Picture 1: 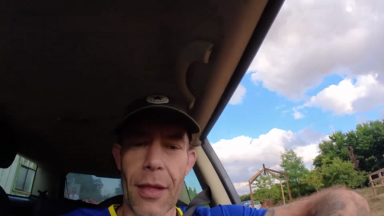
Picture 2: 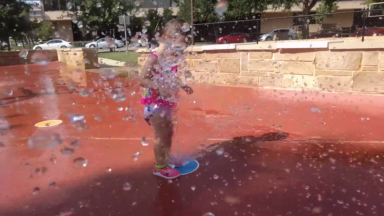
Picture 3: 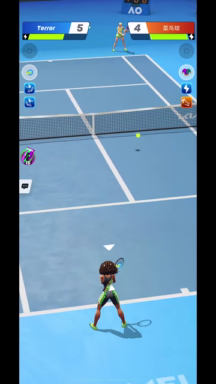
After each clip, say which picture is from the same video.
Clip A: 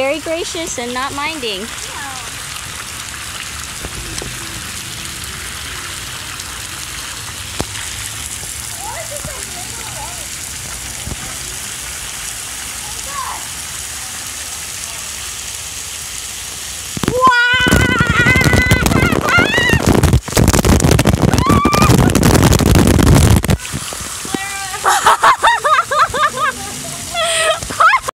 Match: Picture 2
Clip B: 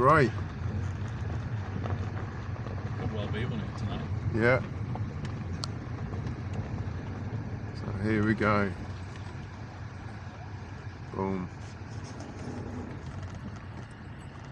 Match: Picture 1